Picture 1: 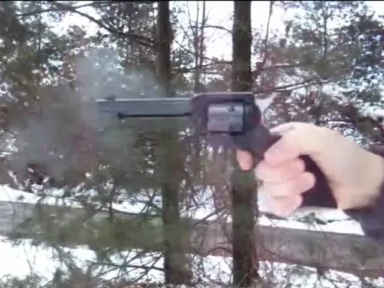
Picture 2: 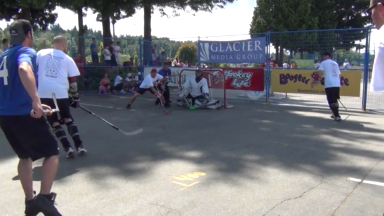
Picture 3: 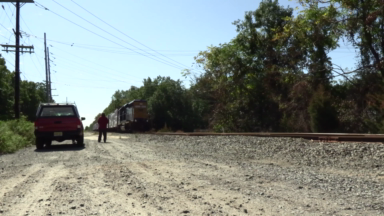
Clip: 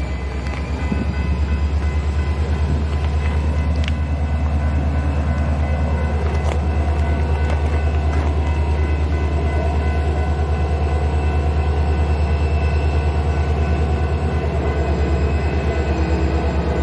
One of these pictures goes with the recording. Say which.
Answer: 3